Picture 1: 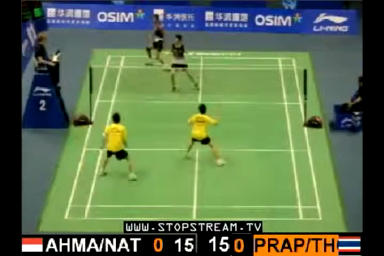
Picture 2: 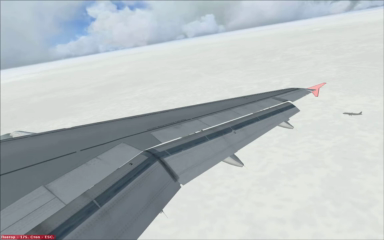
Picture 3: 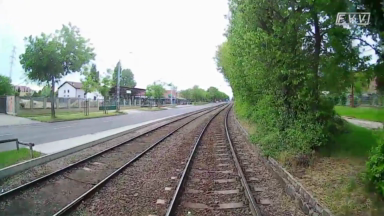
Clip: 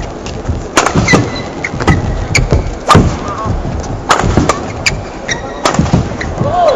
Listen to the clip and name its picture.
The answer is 1